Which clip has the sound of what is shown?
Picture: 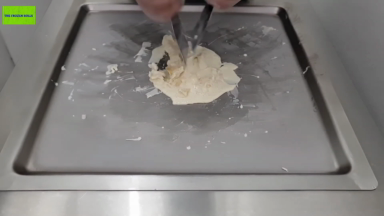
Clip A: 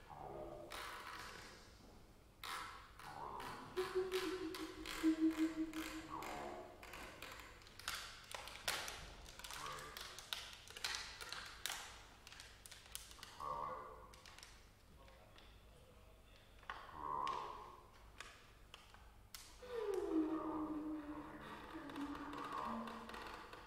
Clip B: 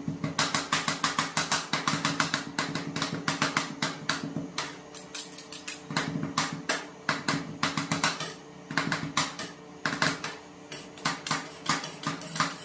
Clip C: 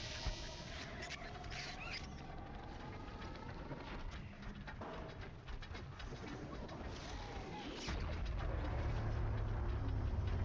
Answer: B